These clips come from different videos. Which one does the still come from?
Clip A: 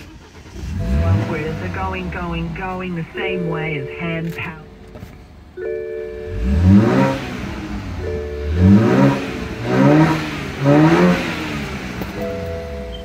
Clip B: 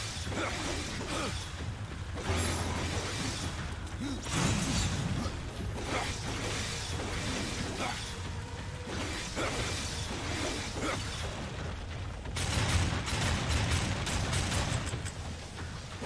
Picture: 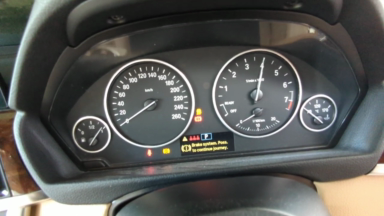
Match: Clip A